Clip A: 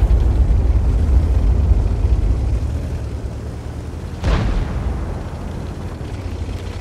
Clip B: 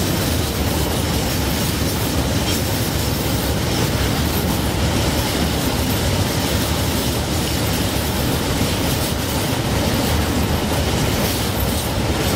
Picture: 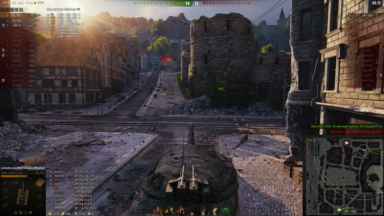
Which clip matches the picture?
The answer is A